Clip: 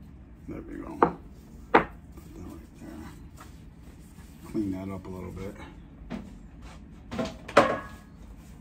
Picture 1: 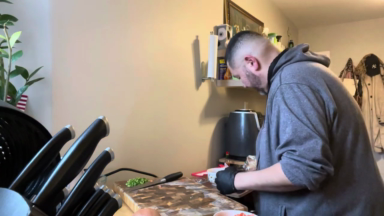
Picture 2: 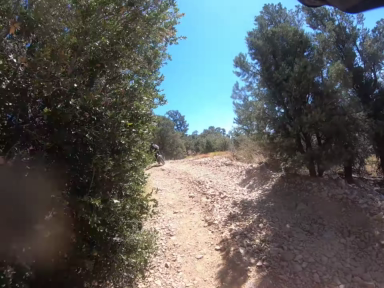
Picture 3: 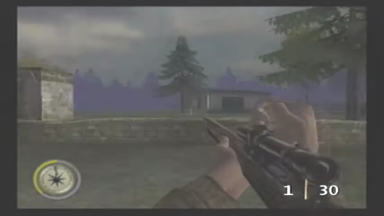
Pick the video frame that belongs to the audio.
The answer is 1